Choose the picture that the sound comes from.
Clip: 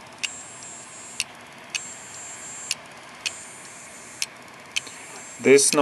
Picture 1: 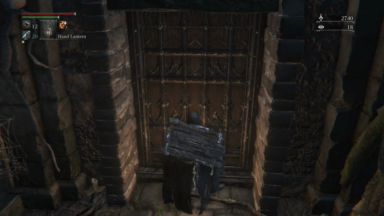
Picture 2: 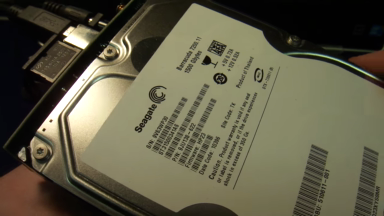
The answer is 2